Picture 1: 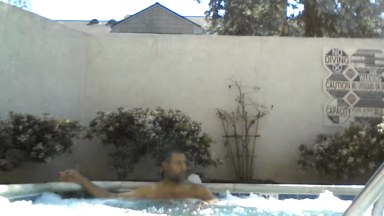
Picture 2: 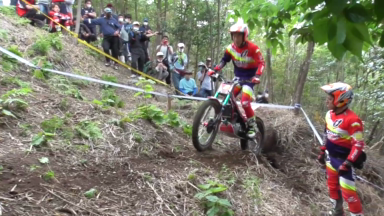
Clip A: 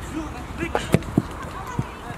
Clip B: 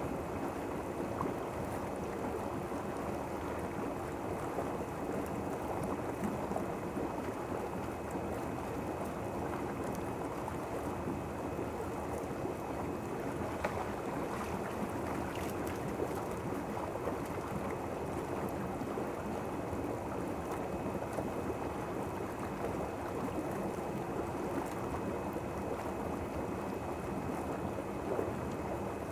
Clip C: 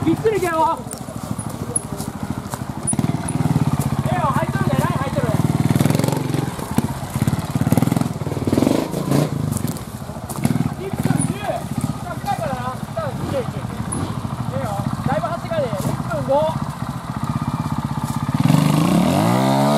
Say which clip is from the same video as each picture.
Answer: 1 B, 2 C